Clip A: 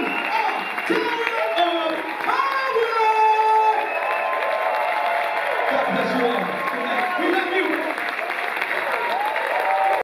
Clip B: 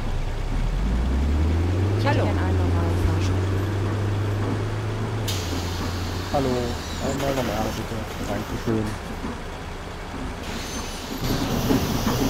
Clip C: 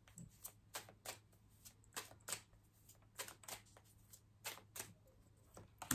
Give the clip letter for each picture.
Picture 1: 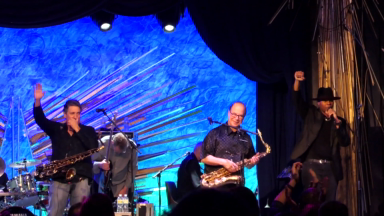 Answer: A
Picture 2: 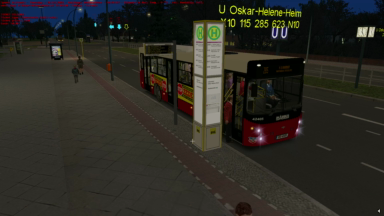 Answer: B